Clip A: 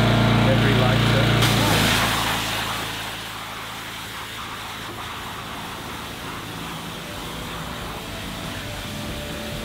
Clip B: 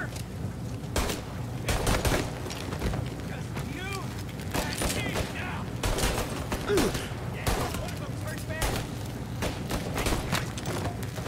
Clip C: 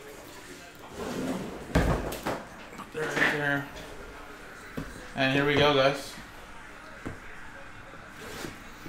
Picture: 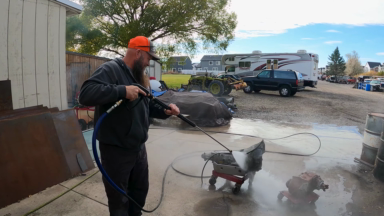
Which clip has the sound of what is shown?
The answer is A